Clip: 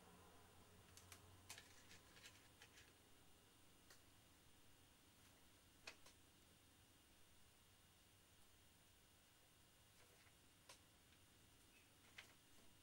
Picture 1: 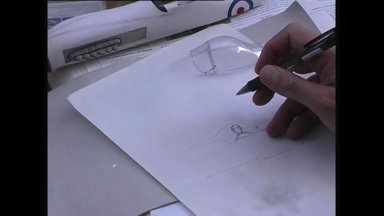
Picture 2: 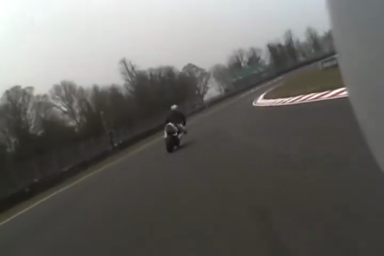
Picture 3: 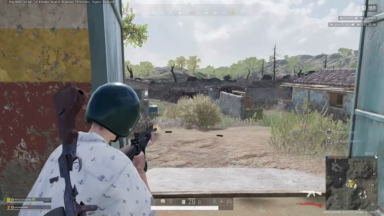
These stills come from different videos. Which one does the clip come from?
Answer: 1